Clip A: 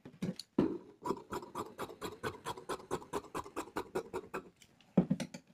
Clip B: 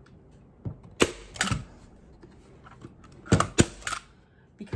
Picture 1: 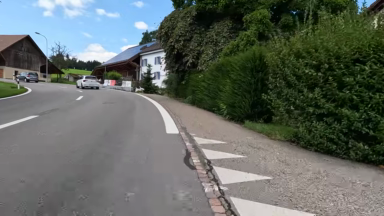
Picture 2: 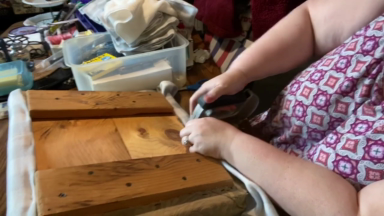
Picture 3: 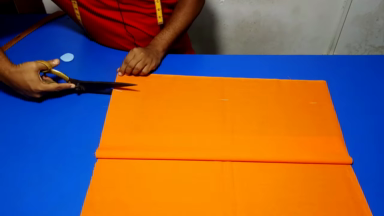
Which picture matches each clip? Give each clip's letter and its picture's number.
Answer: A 3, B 2